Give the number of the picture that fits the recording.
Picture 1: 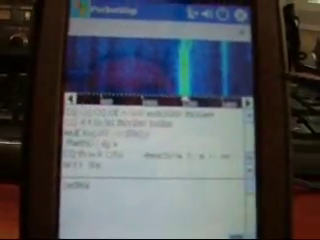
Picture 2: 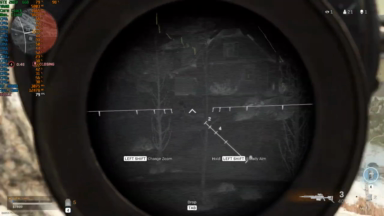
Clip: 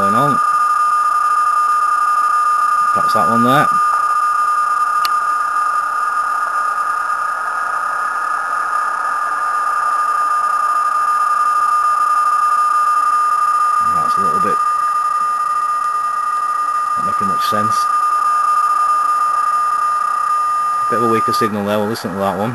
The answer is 1